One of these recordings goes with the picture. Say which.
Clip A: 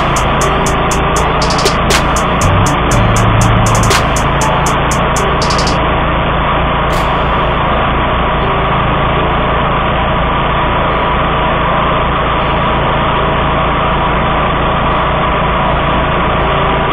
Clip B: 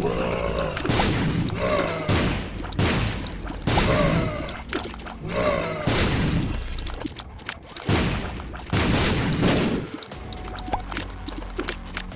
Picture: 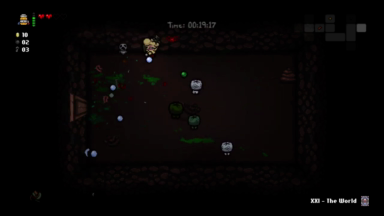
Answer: B